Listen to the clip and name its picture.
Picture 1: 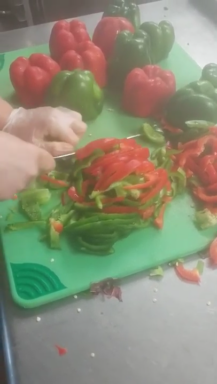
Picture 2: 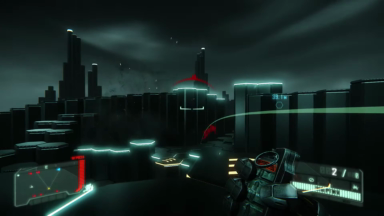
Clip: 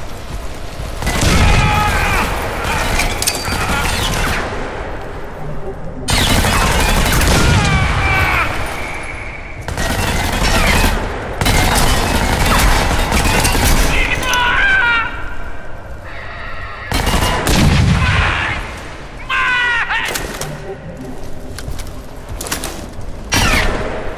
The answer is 2